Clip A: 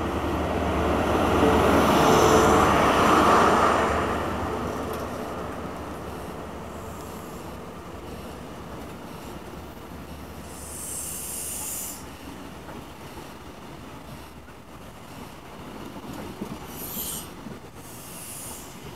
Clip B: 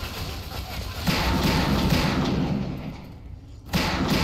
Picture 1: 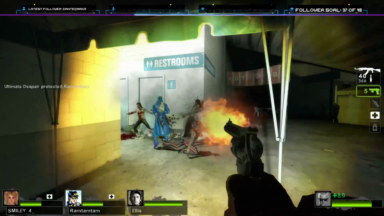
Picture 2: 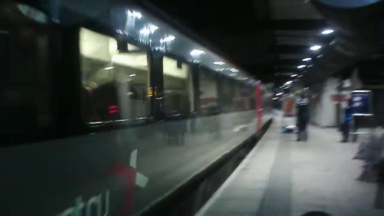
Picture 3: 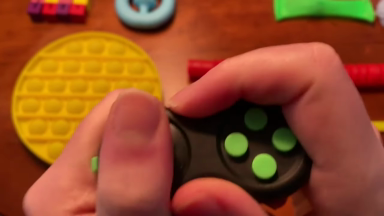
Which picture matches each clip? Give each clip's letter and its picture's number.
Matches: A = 2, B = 1